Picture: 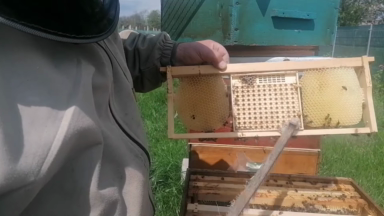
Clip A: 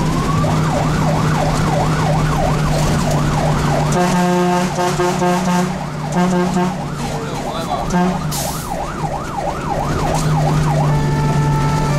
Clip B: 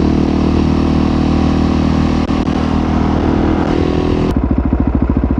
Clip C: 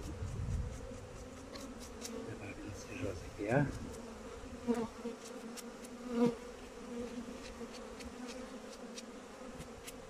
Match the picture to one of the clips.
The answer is C